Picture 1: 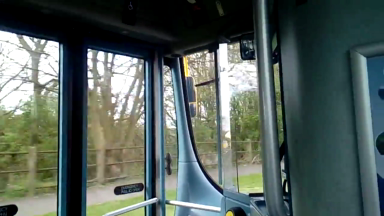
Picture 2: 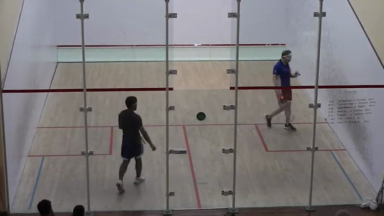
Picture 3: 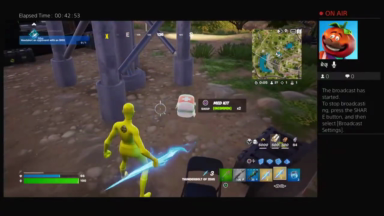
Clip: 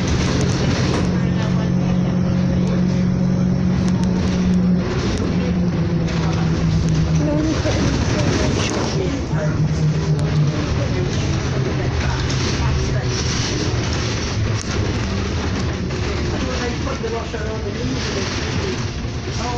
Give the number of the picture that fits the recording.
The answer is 1